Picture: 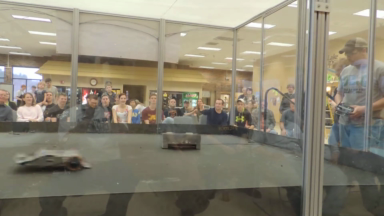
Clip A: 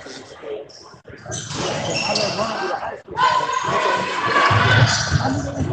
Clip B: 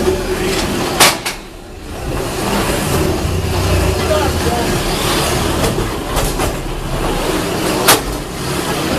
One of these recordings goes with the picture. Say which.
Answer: B